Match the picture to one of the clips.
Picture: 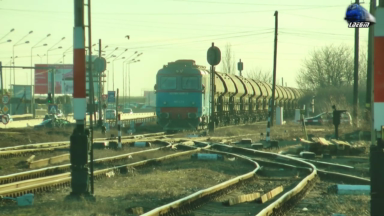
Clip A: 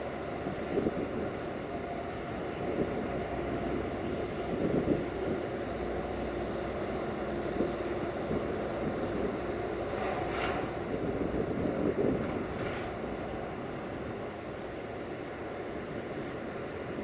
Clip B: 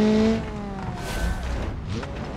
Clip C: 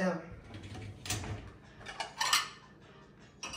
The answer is A